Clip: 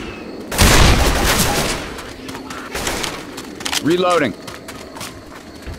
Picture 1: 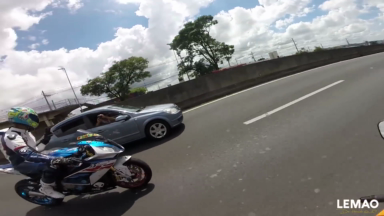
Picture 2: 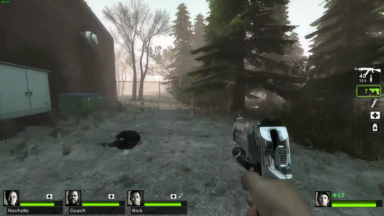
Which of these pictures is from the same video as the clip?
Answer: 2